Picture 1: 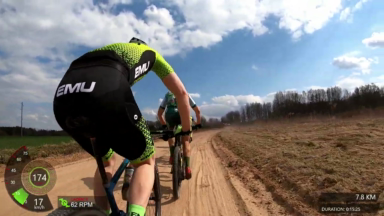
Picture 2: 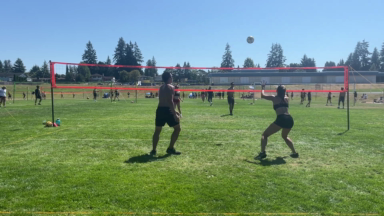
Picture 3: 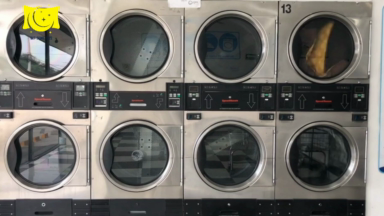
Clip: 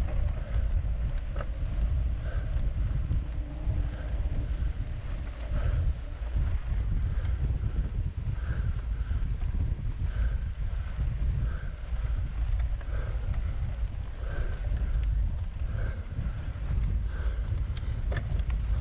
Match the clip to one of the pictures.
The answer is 1